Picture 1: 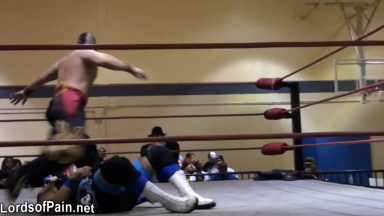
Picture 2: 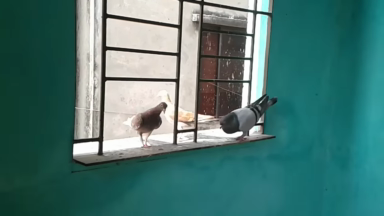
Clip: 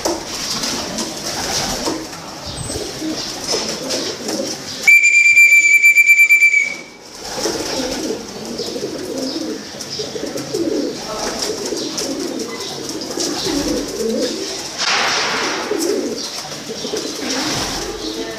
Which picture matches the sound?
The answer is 2